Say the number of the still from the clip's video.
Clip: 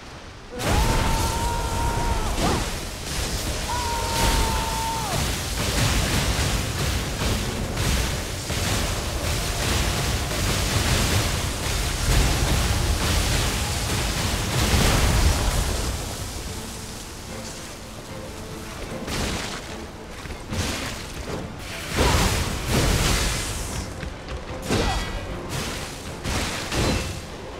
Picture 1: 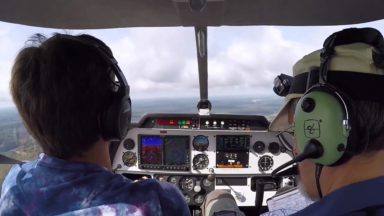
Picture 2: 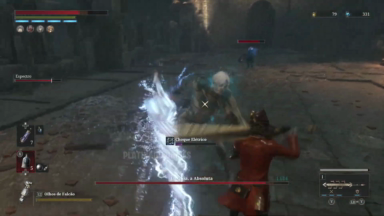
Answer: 2